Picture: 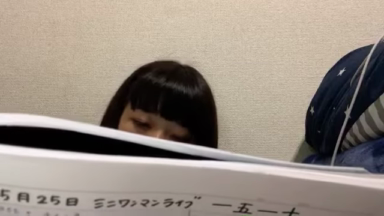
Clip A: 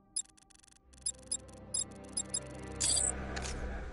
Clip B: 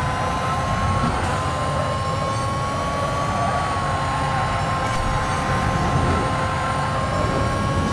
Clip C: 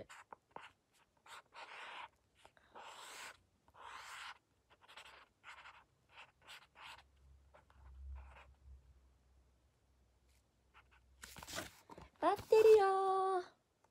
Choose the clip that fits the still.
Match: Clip C